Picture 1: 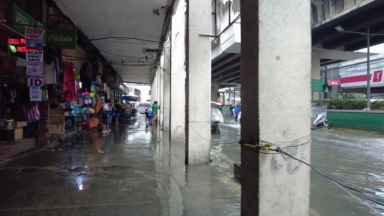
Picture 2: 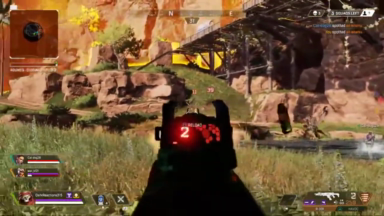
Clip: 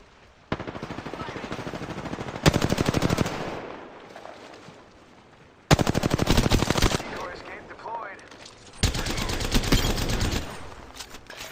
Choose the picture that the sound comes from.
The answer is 2